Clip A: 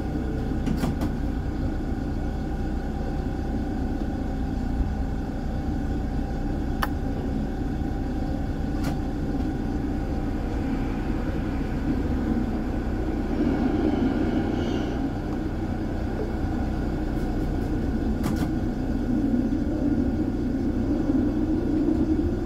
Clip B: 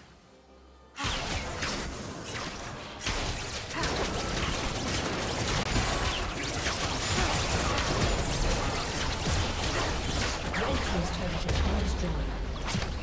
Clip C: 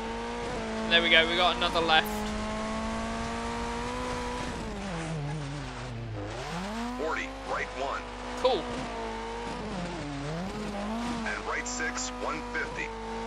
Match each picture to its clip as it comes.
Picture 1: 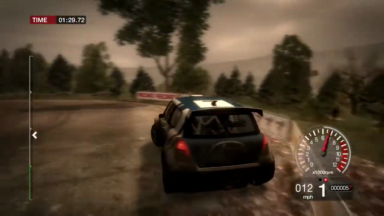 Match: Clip C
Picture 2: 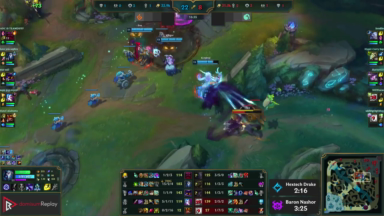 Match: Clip B